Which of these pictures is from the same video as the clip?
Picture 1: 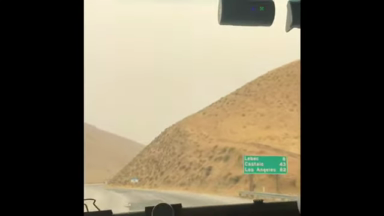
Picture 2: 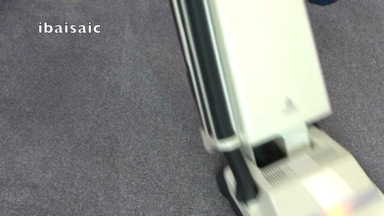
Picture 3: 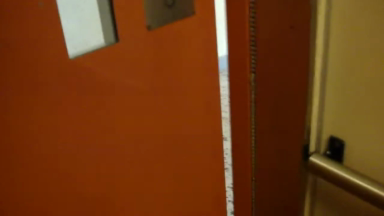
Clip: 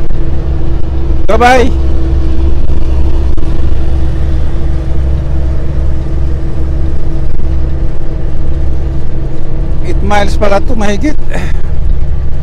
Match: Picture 1